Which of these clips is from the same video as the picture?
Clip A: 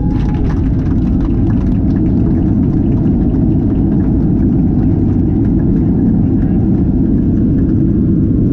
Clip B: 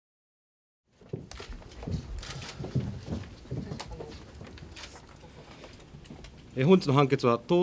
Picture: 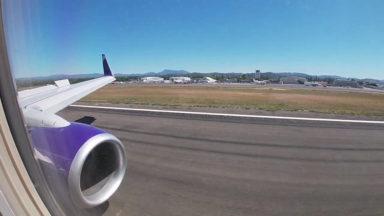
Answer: A